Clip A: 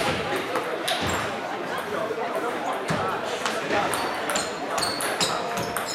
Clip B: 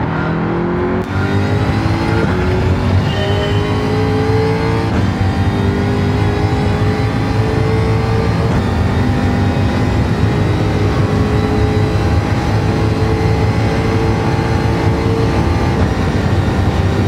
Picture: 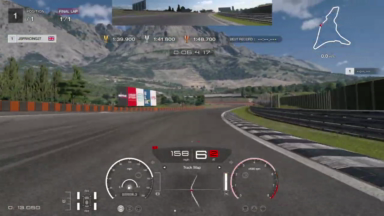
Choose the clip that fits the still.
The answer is B